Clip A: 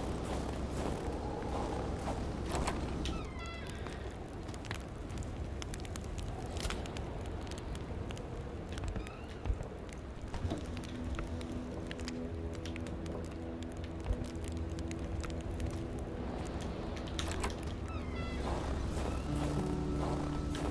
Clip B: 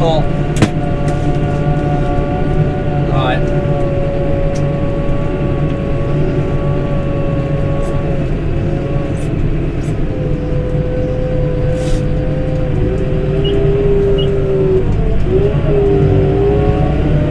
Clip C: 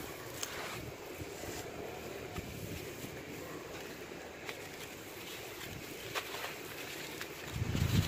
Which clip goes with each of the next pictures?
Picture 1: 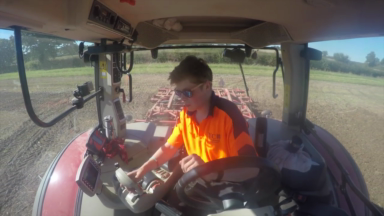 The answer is B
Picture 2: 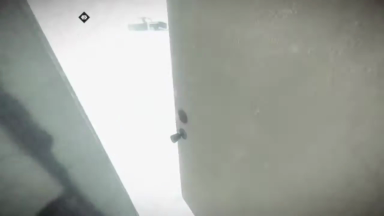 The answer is A